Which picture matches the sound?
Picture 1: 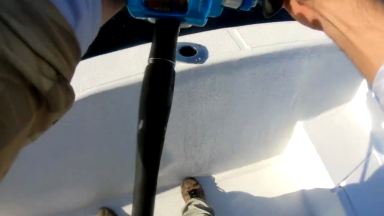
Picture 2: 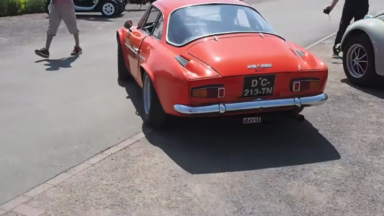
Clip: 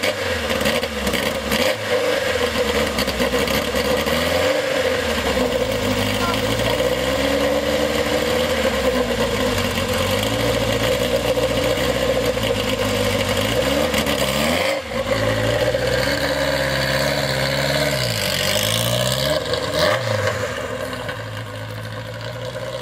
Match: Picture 2